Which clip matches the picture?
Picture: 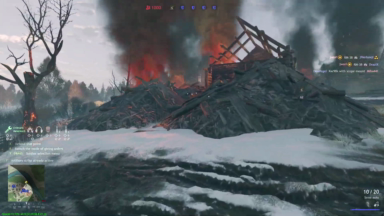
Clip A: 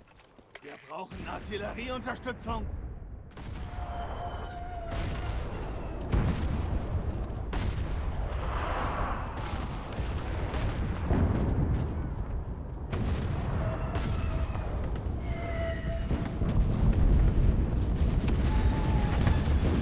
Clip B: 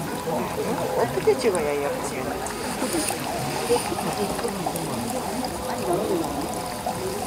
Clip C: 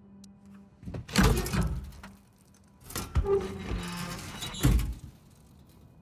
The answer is A